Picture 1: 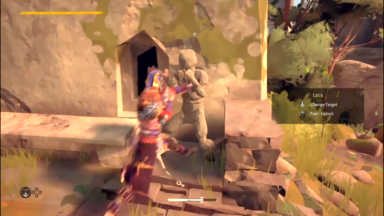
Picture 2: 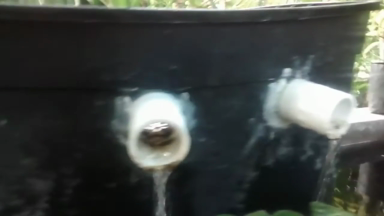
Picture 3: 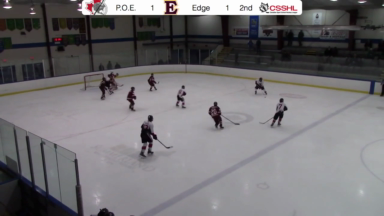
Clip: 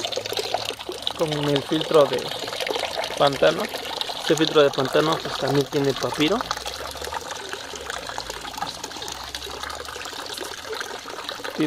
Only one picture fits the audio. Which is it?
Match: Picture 2